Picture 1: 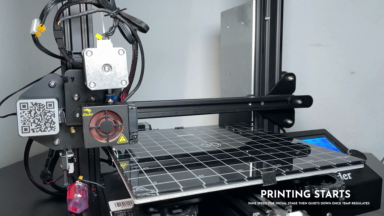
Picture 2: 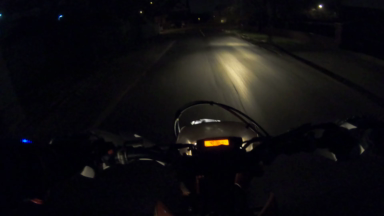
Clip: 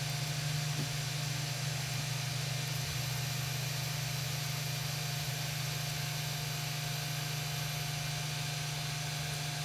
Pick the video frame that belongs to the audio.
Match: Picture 1